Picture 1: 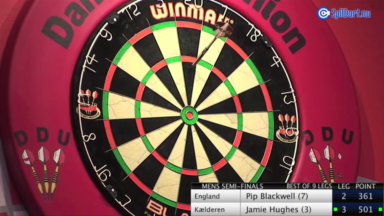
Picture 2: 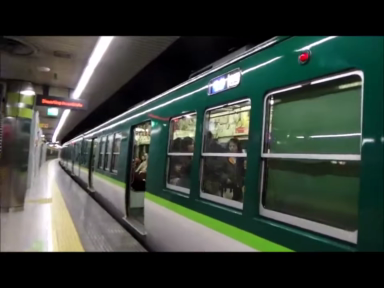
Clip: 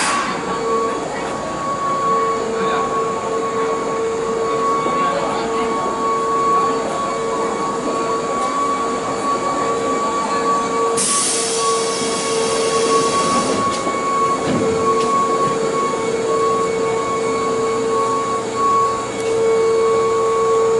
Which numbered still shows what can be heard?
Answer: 2